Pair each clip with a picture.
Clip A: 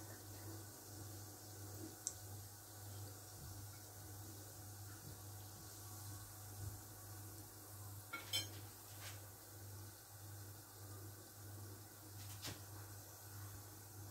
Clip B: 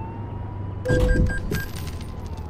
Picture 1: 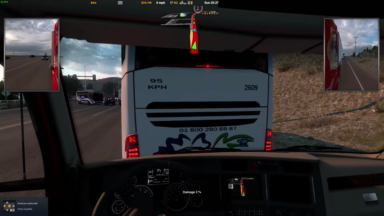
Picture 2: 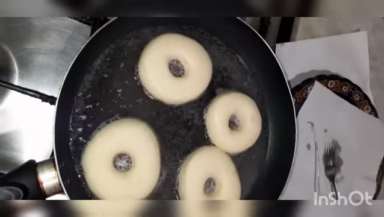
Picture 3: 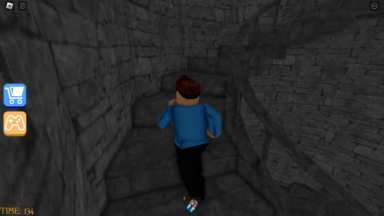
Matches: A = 2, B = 1